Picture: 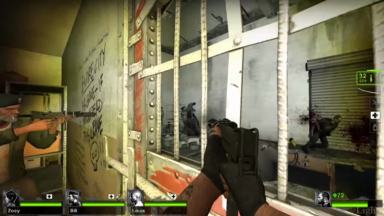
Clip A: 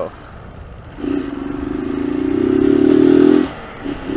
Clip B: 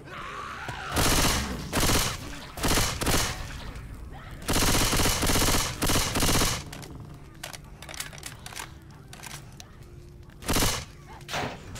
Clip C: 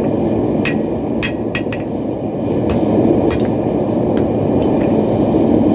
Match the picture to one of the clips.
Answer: B